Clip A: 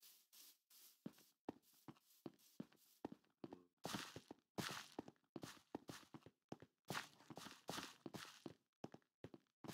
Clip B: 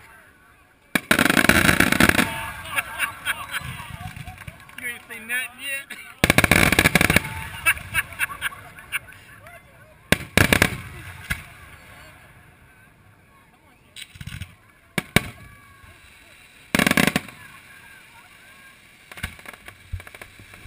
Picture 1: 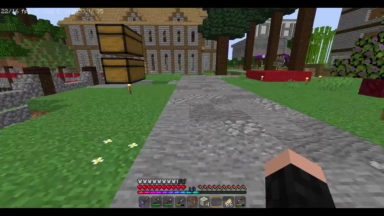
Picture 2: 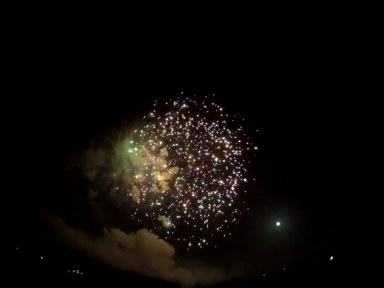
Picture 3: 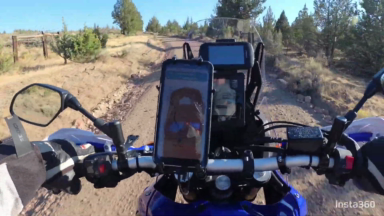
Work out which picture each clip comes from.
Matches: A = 1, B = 2